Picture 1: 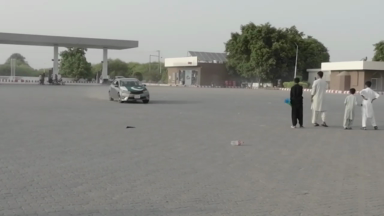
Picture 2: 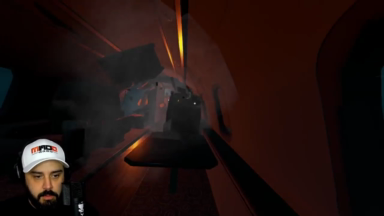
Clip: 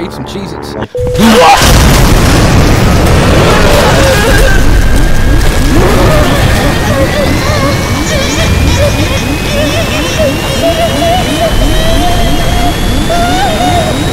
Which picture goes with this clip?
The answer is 2